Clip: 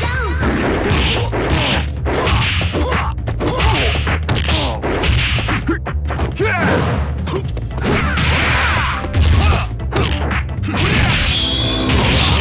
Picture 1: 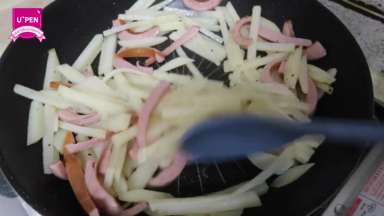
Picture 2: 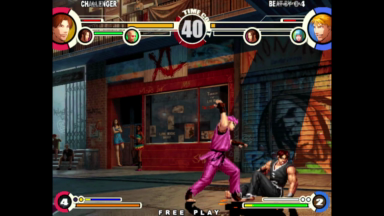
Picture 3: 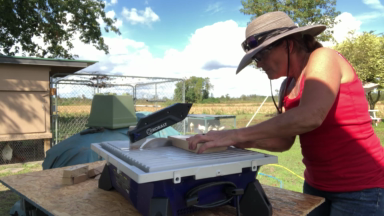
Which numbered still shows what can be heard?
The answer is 2